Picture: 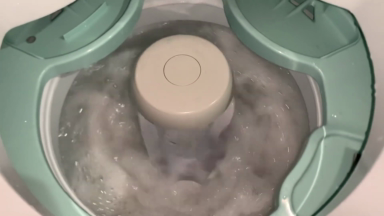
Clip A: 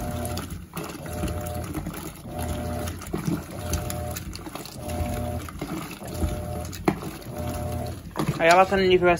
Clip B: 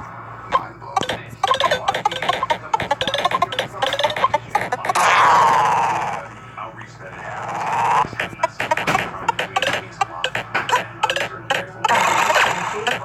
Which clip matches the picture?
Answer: A